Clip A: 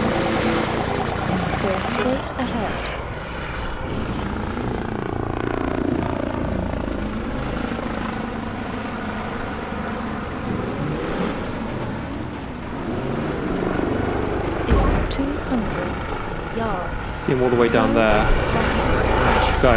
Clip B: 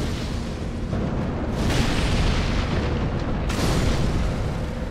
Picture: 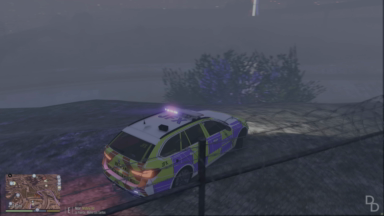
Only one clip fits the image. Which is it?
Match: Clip A